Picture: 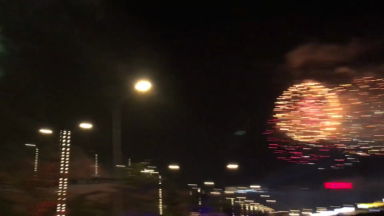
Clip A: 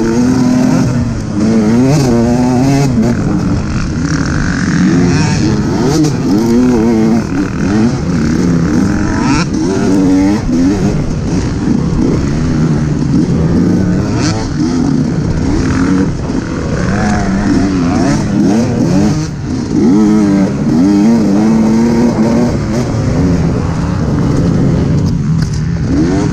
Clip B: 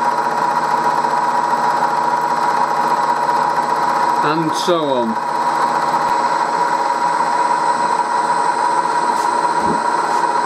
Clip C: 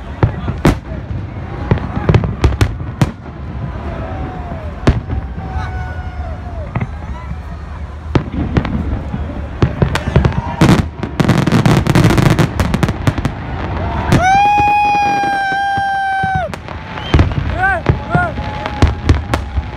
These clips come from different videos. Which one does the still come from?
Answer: C